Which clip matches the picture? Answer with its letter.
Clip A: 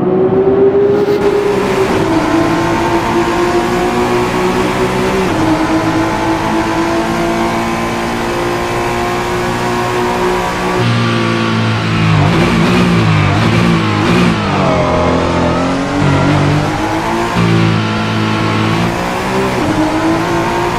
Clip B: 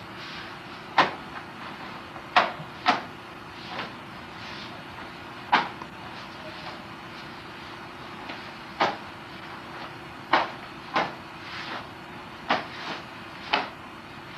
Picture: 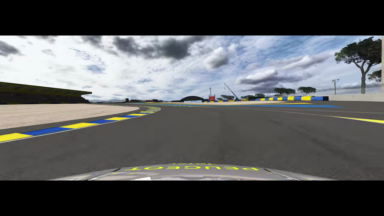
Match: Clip A